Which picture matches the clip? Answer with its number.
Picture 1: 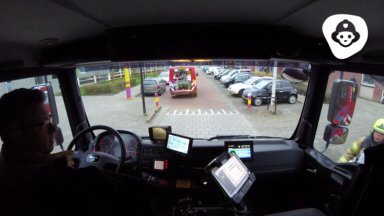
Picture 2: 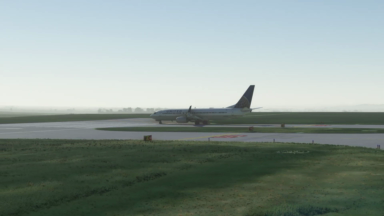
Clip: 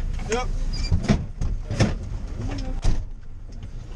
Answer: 1